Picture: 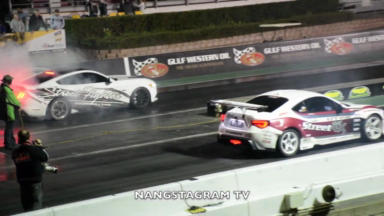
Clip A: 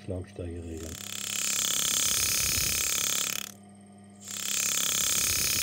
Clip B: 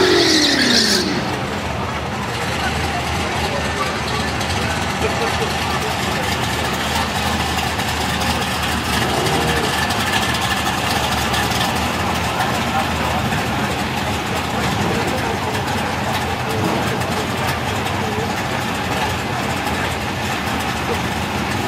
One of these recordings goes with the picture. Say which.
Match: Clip B